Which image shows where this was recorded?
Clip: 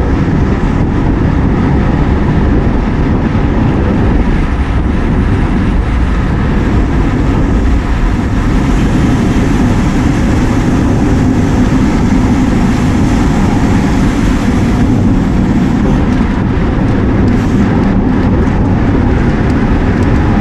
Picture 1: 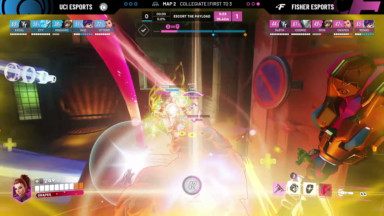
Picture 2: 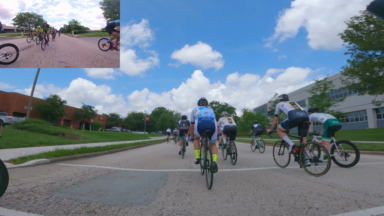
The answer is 2